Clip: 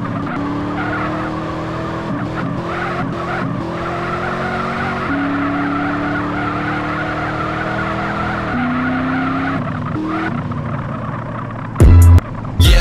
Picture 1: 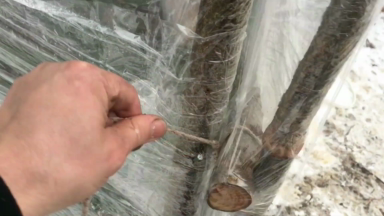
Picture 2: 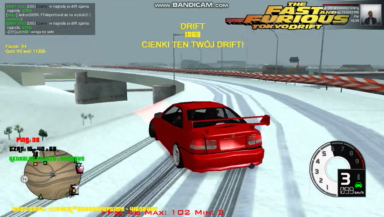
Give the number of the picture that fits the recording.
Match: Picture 2